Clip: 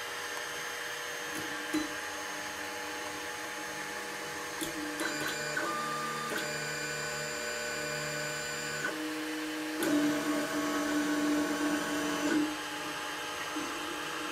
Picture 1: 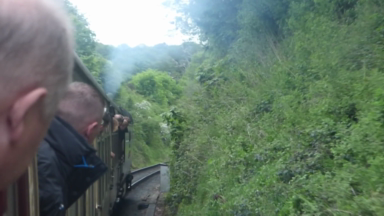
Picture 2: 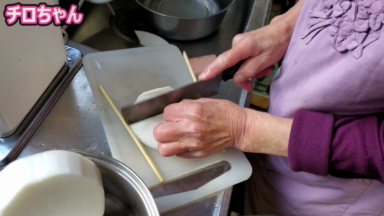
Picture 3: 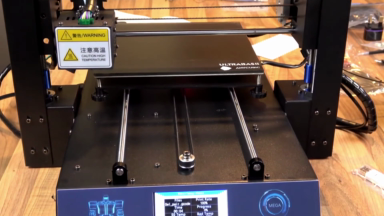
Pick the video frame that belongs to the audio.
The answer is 3